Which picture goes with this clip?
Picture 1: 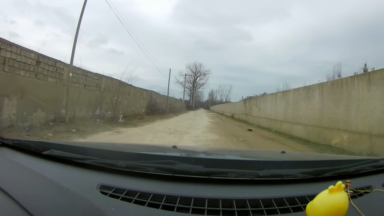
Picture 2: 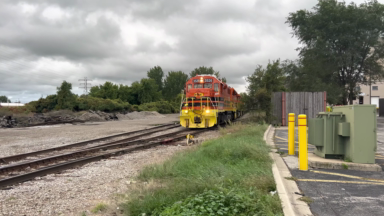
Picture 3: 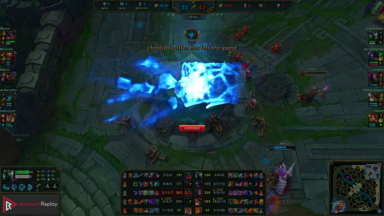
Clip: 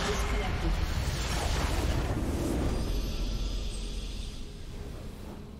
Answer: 3